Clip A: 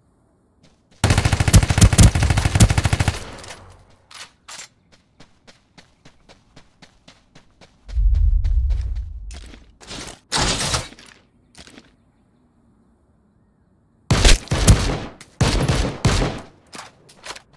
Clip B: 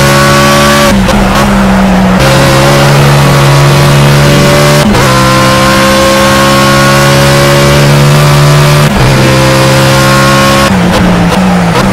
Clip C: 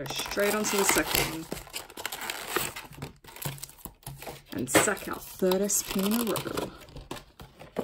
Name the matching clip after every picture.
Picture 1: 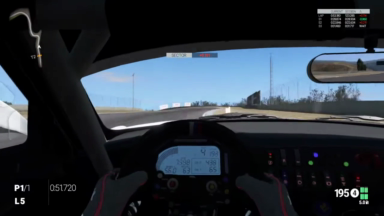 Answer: B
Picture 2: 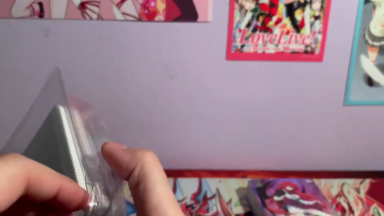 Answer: C